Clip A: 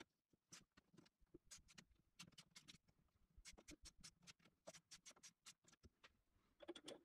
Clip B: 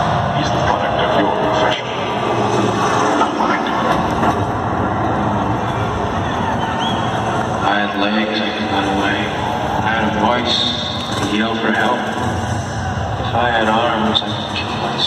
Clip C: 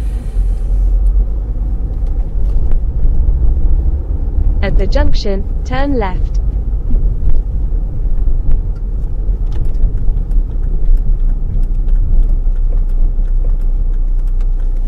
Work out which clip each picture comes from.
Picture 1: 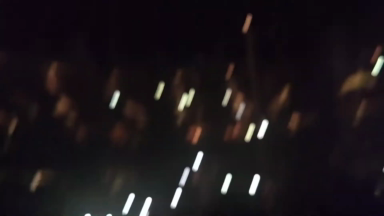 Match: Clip B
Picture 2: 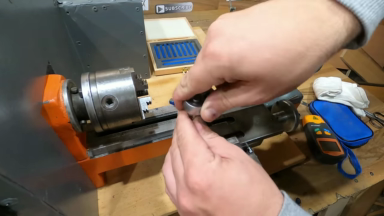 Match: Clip A